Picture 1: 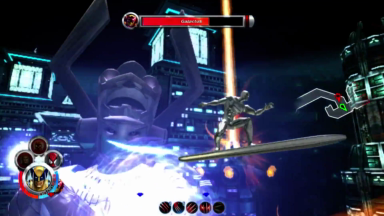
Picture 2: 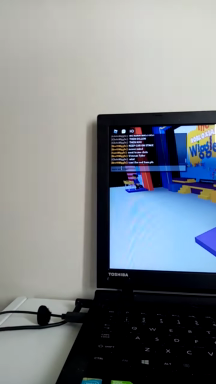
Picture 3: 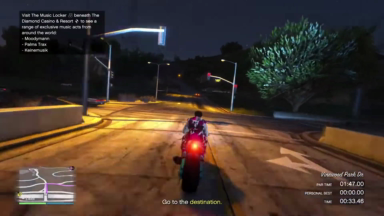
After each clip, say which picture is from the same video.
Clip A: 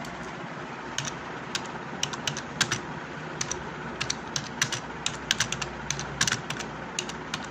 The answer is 2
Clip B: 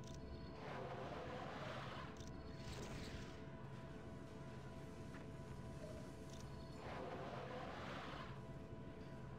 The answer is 1